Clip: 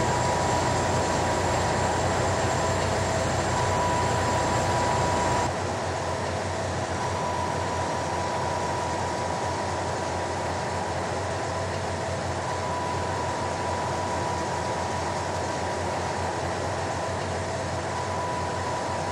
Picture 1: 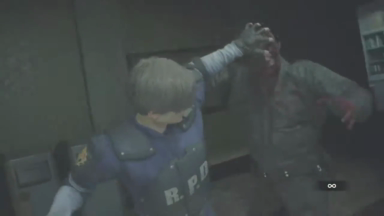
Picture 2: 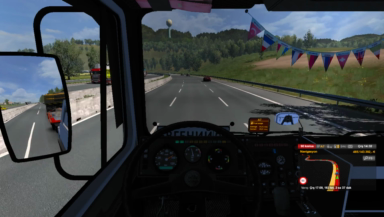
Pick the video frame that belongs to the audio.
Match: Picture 2